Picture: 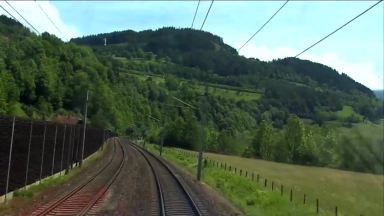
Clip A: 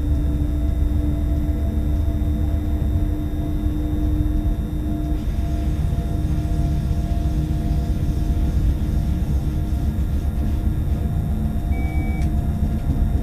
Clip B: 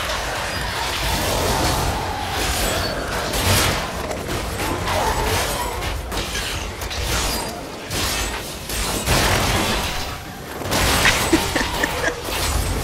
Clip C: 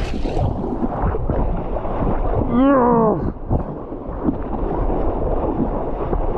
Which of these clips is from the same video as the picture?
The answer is A